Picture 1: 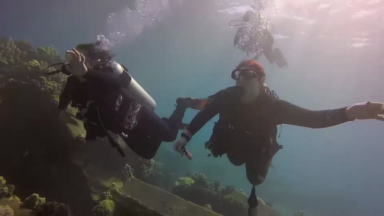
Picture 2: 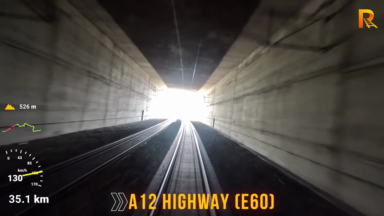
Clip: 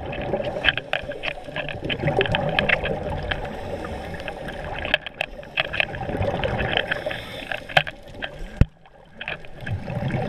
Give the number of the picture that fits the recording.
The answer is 1